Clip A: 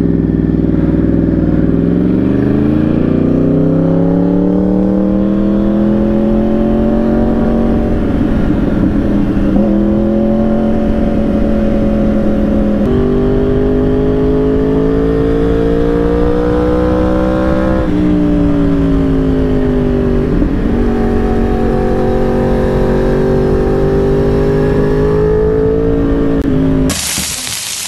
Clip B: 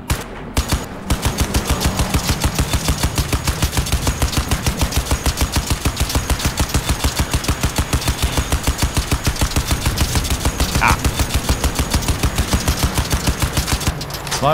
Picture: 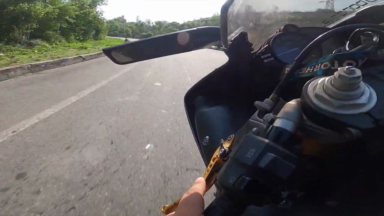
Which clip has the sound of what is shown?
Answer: A